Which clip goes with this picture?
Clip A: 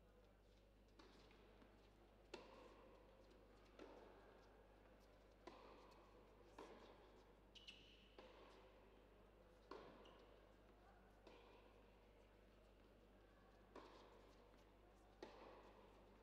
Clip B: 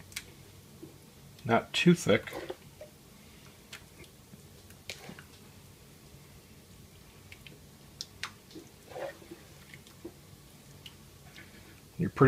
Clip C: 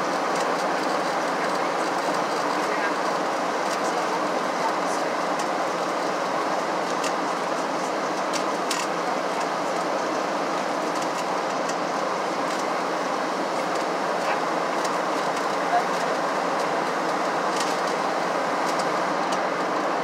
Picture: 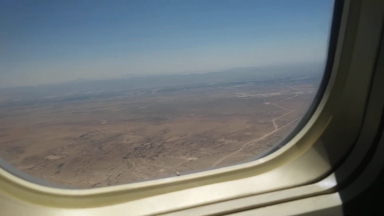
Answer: C